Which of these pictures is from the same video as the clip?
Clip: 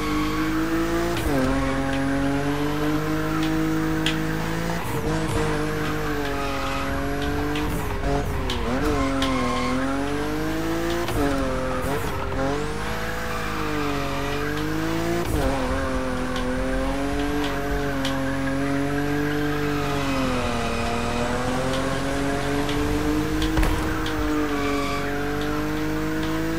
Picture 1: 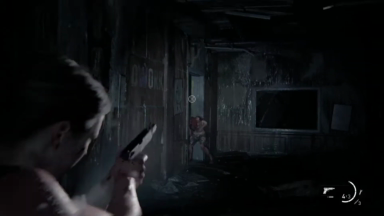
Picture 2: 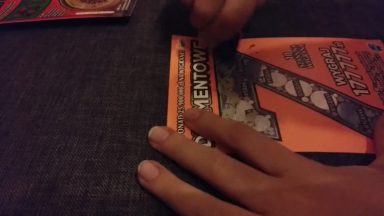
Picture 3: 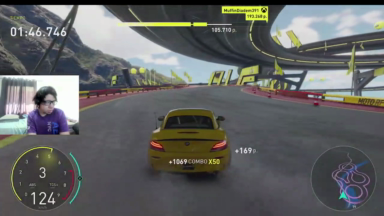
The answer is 3